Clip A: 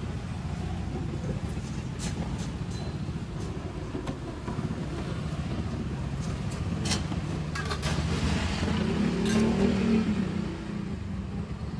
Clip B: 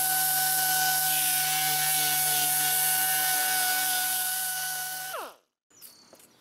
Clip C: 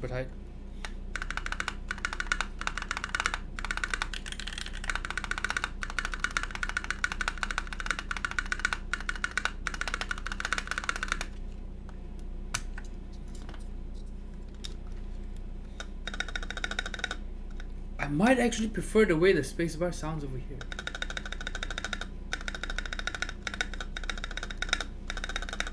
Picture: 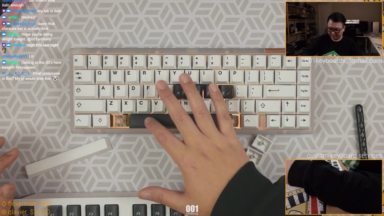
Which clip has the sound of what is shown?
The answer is C